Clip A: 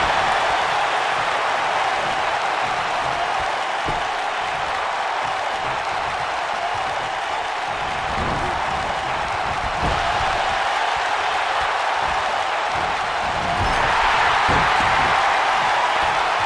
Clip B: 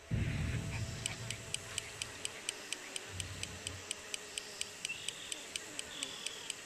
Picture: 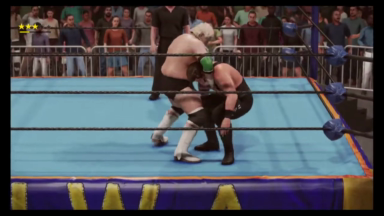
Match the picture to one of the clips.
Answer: A